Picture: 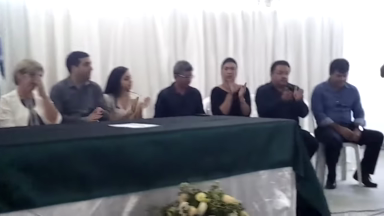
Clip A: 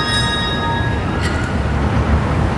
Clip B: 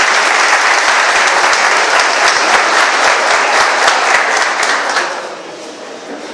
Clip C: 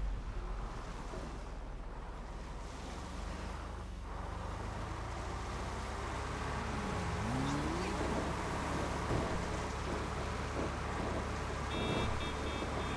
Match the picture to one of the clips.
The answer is B